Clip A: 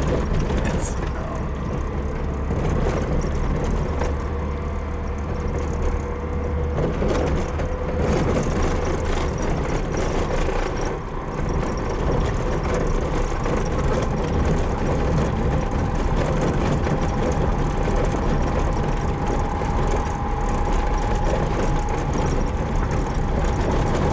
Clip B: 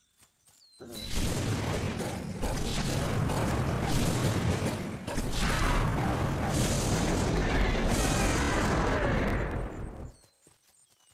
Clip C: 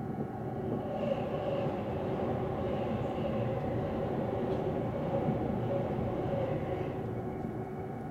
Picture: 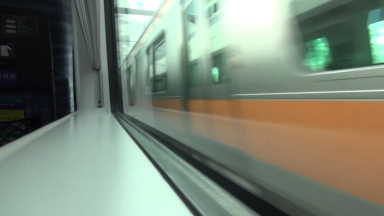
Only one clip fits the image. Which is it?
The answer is C